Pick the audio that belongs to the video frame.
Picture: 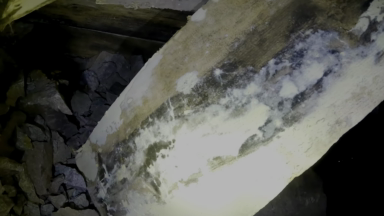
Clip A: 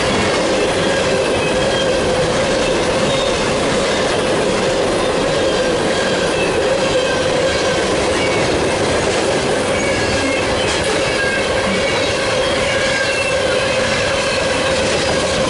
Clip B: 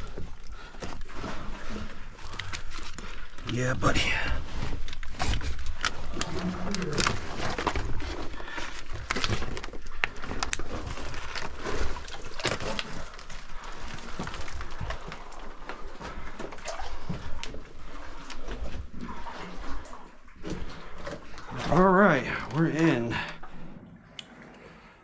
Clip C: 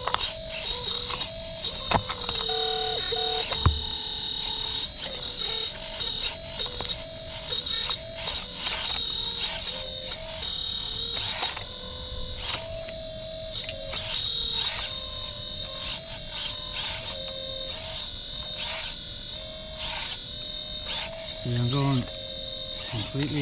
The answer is B